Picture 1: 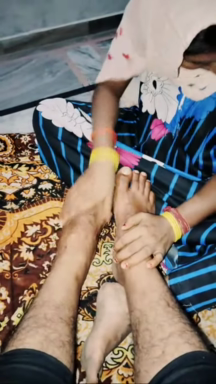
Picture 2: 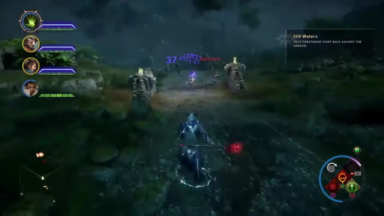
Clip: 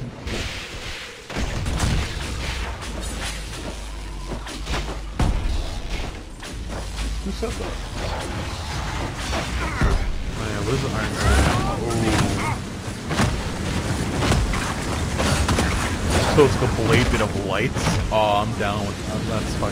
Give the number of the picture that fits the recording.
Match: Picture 2